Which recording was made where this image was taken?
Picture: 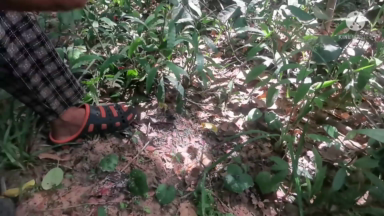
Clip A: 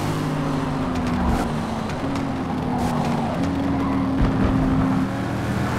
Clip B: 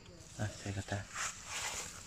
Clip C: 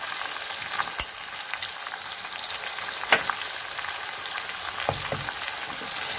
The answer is B